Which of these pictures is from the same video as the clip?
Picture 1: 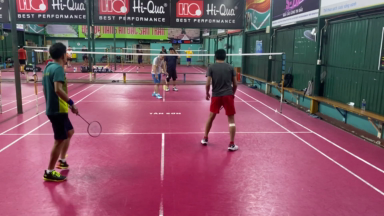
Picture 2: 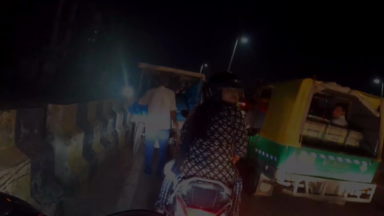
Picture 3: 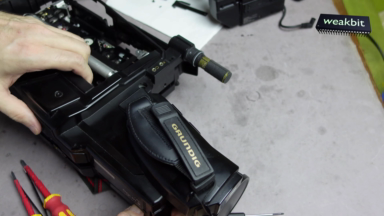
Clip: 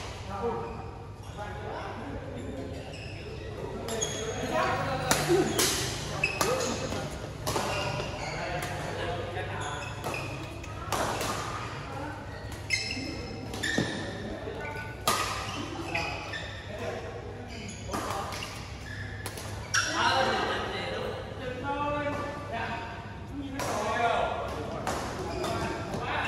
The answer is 1